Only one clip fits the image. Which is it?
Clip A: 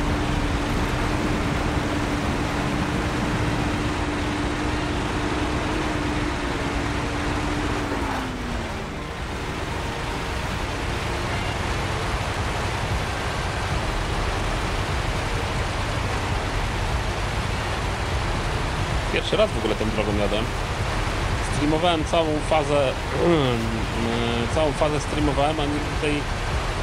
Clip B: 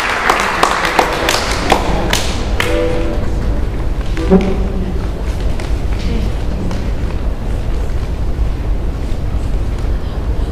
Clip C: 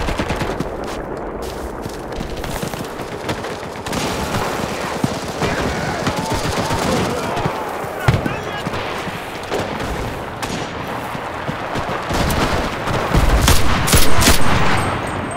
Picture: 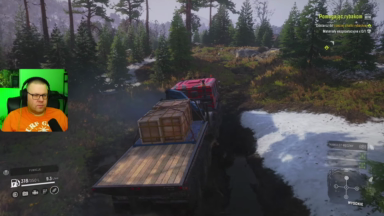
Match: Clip A